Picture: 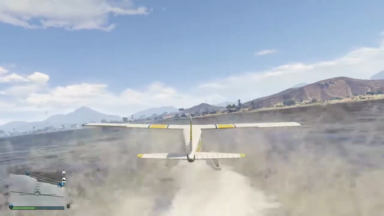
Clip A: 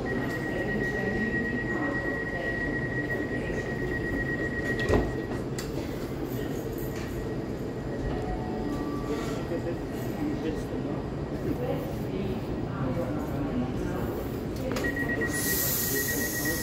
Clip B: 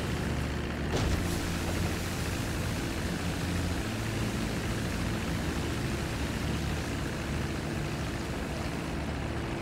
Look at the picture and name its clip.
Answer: B